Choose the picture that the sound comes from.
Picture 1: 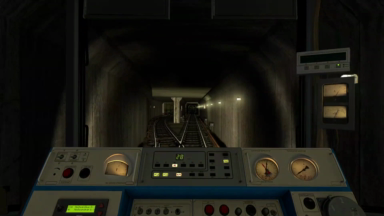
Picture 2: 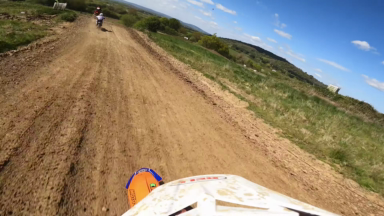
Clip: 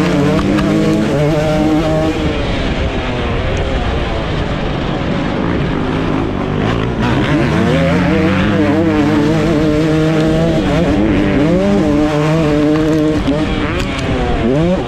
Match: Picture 2